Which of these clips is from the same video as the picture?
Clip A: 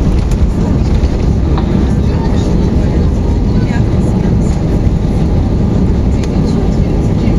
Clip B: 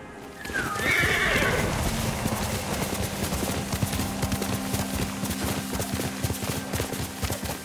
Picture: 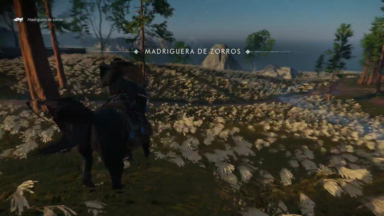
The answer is B